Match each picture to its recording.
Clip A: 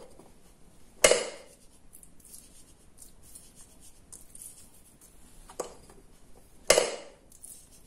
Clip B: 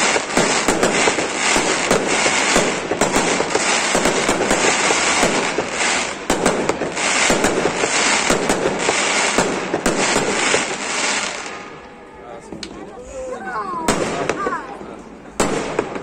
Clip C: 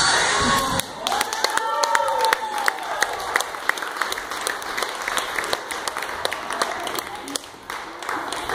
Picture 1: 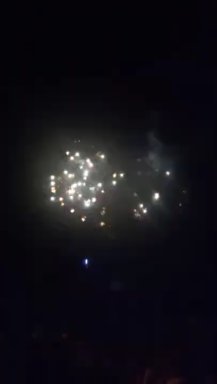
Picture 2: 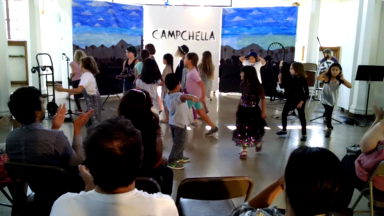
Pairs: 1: B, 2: C